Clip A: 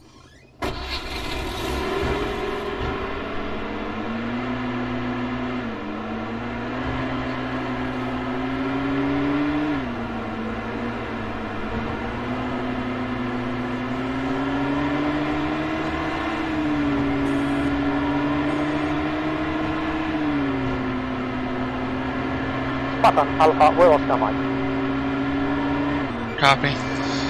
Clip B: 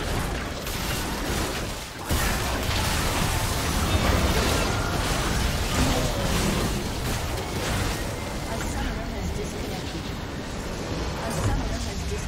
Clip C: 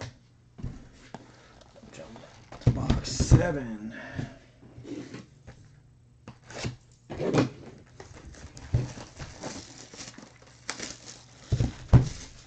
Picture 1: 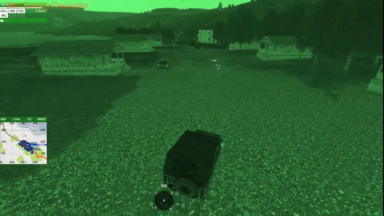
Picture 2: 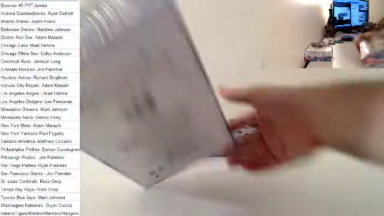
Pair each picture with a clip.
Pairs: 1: A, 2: C